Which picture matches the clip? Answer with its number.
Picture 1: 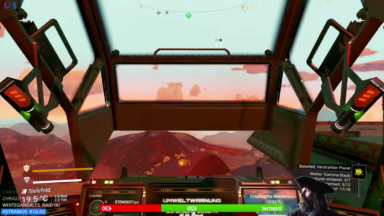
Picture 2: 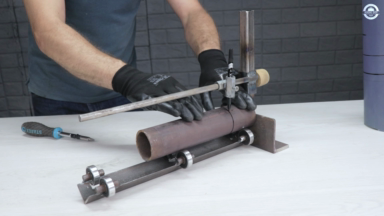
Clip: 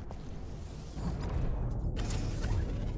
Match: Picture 1